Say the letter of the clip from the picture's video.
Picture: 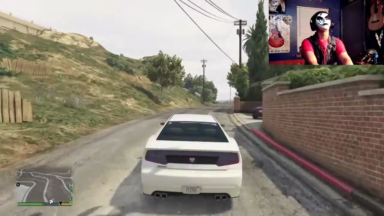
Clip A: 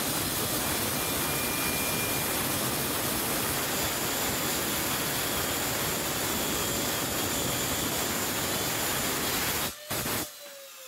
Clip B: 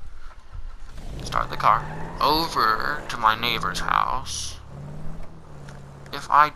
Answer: B